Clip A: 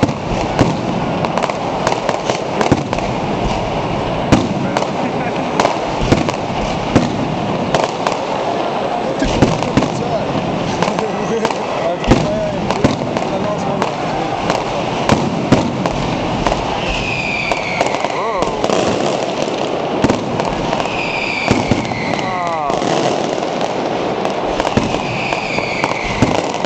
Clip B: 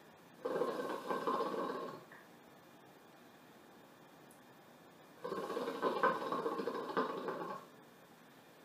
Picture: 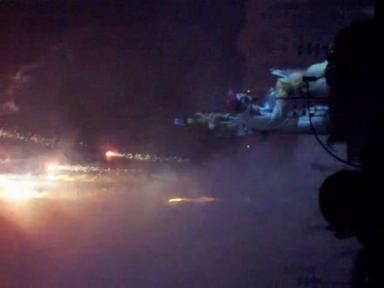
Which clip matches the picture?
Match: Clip A